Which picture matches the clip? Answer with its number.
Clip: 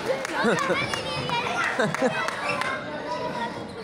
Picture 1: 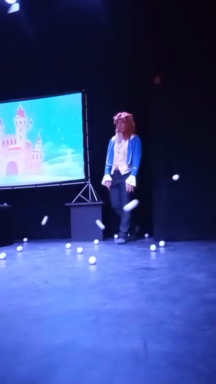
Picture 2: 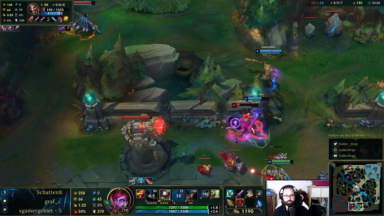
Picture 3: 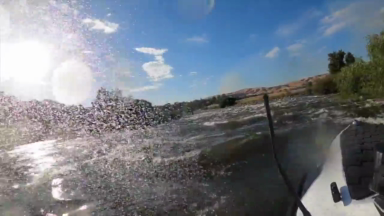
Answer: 1